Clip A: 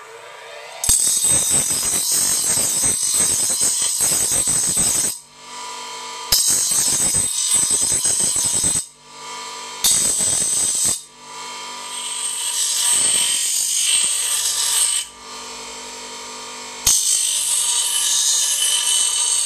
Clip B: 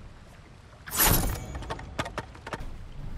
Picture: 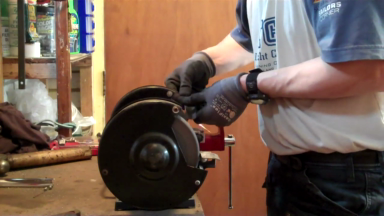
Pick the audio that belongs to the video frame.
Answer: A